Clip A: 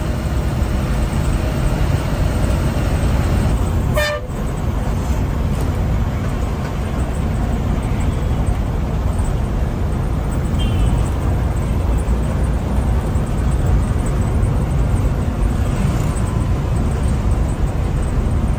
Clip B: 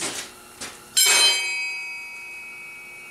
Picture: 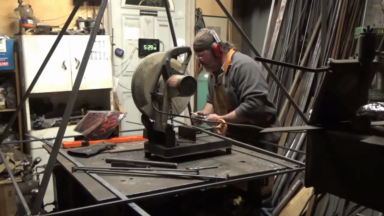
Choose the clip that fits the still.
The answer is B